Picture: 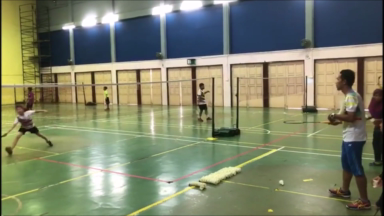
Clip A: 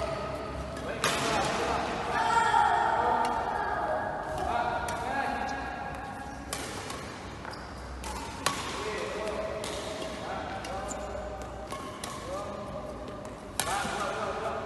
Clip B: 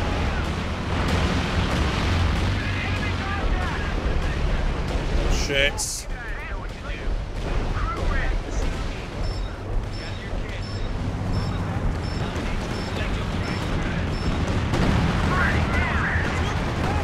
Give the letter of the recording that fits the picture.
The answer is A